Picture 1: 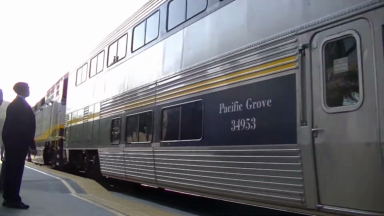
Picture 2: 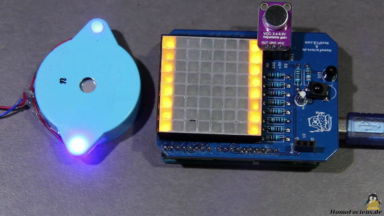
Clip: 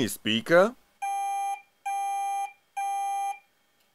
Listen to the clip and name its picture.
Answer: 2